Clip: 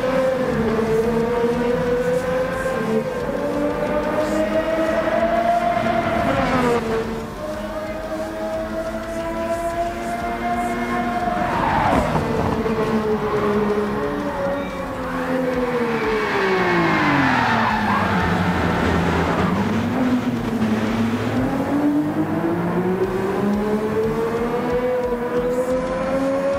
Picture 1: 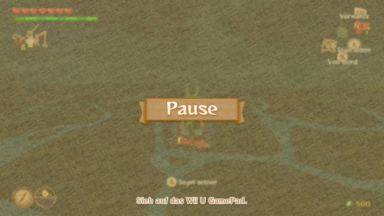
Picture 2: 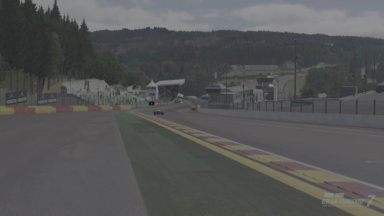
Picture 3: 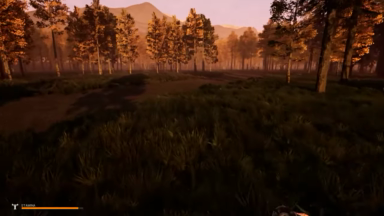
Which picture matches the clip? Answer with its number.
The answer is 2